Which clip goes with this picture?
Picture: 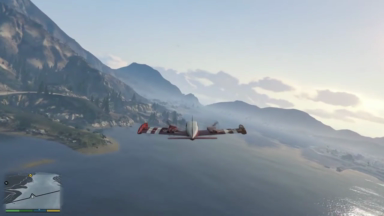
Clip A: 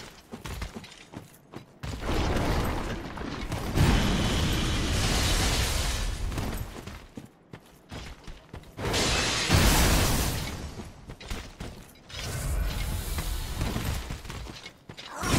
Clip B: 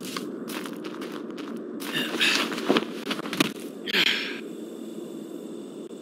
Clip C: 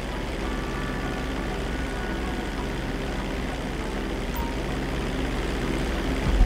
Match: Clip C